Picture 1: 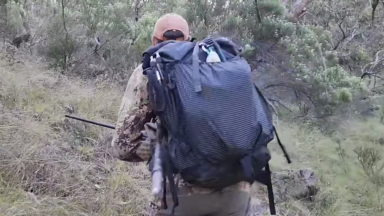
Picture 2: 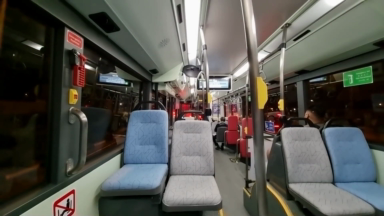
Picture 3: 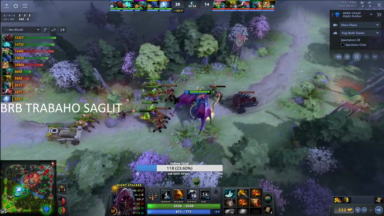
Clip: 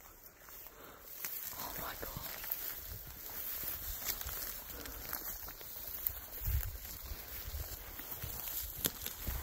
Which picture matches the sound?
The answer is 1